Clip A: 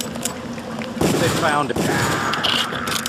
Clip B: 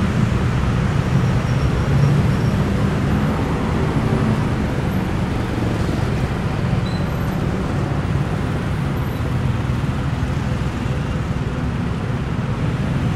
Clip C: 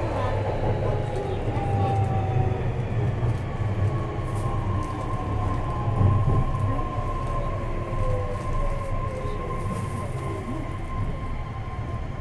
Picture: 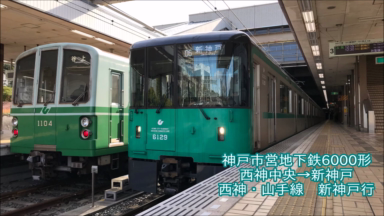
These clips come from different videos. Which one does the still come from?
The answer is C